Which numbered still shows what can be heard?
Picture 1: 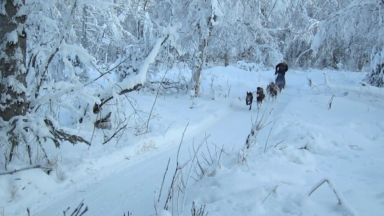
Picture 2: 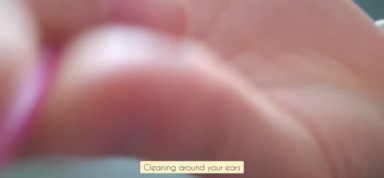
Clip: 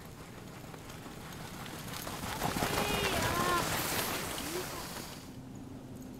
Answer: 1